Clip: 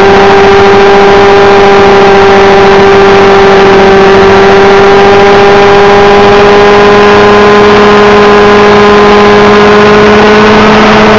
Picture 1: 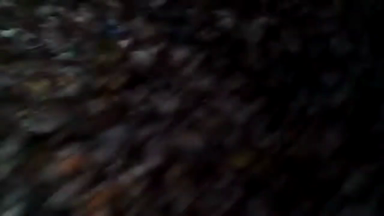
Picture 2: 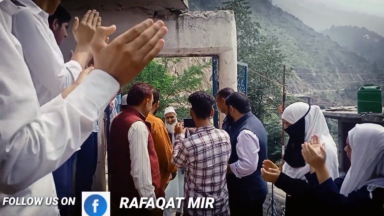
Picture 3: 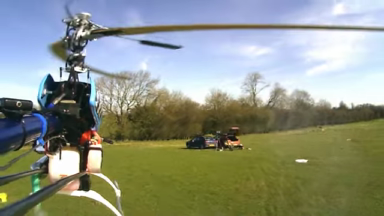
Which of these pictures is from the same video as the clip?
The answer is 3